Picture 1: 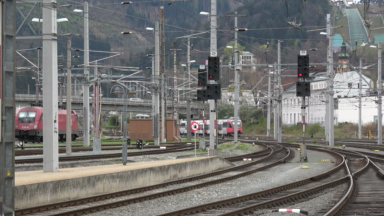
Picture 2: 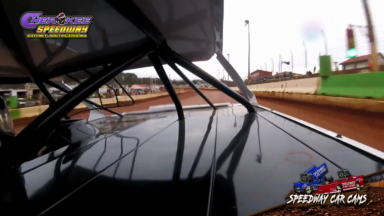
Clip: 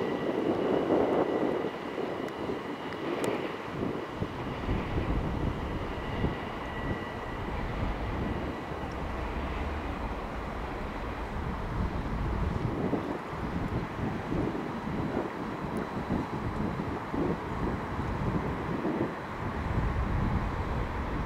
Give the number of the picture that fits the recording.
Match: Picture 1